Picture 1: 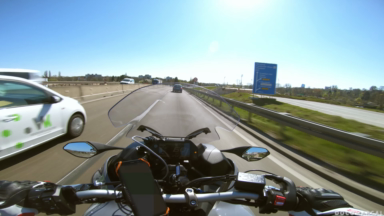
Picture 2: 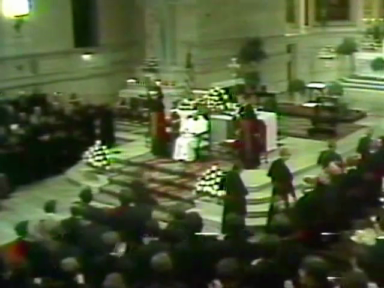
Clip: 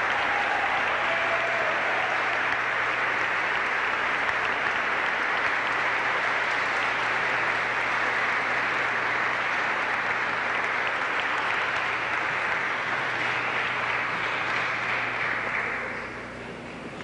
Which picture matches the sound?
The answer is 2